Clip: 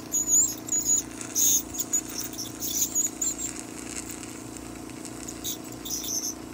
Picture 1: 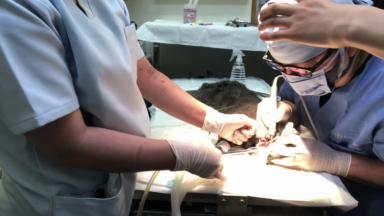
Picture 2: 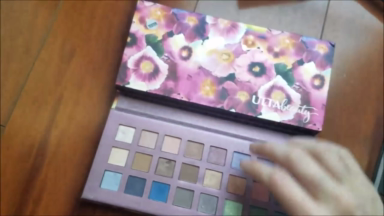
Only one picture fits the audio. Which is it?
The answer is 1